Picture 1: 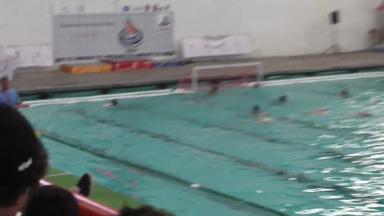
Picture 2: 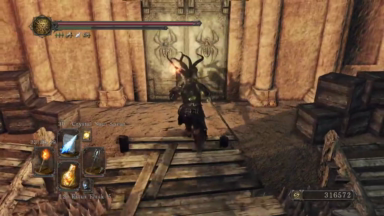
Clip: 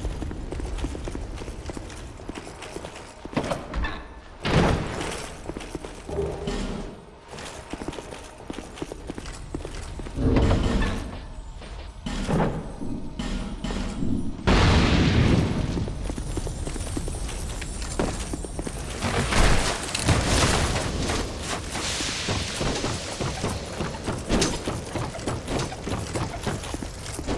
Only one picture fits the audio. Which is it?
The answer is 2